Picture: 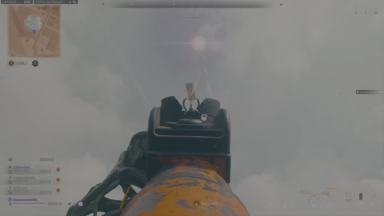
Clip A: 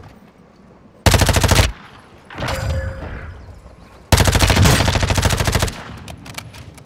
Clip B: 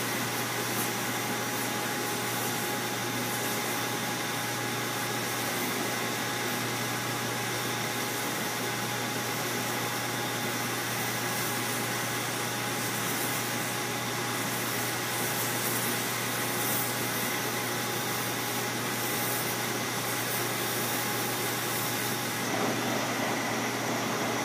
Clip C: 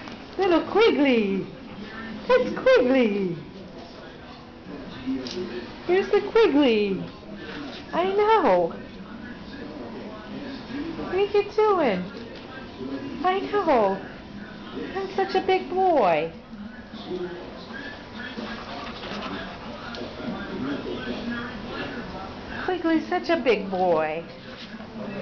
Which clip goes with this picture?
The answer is A